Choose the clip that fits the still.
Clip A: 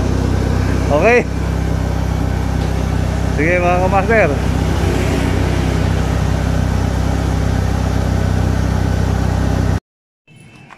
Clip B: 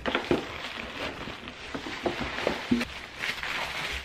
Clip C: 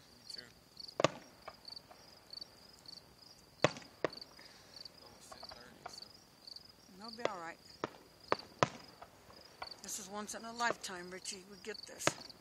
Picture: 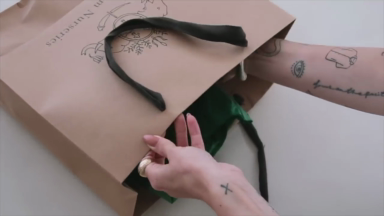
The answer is B